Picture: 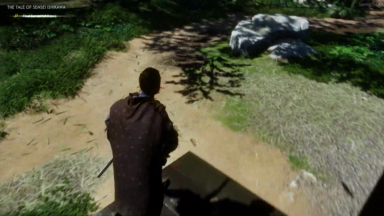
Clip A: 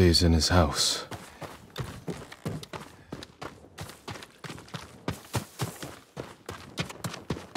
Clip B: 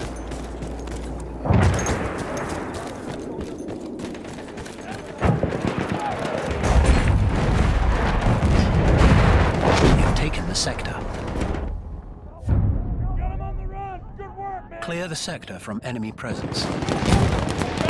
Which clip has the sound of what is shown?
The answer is A